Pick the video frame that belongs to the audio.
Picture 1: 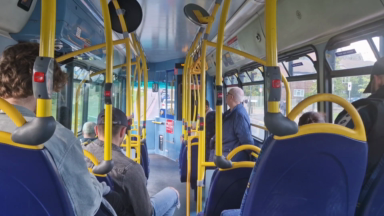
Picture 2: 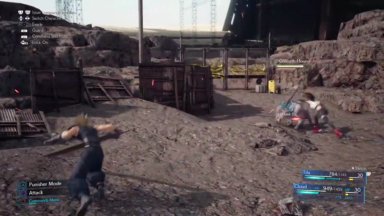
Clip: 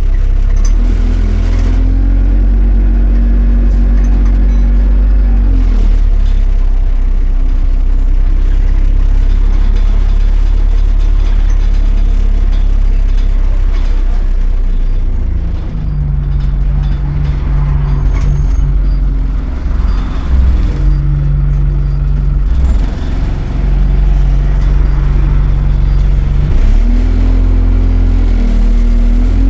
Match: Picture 1